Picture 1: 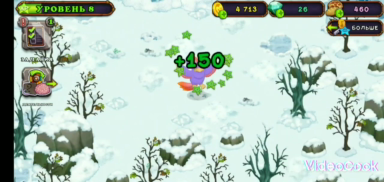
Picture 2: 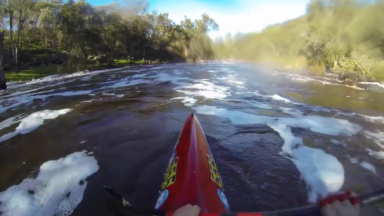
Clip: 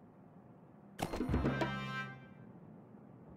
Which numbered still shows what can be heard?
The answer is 1